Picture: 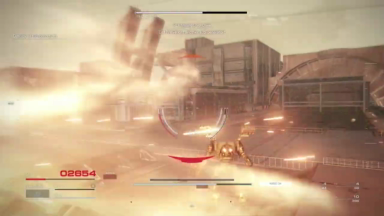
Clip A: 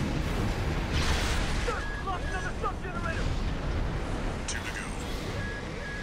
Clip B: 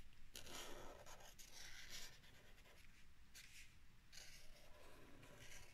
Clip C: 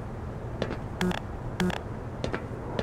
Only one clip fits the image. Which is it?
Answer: A